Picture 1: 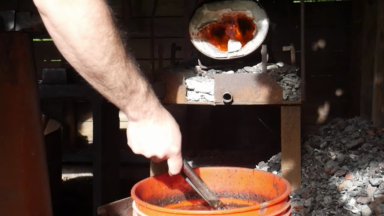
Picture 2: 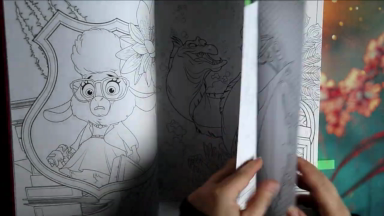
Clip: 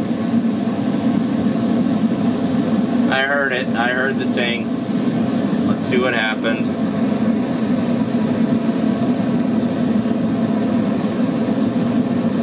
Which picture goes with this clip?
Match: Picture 1